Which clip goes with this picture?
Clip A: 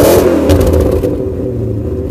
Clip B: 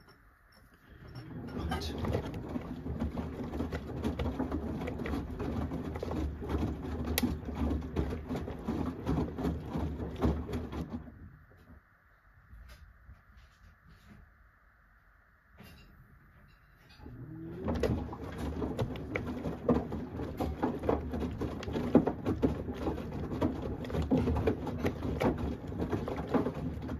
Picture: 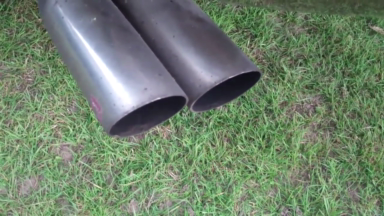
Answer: A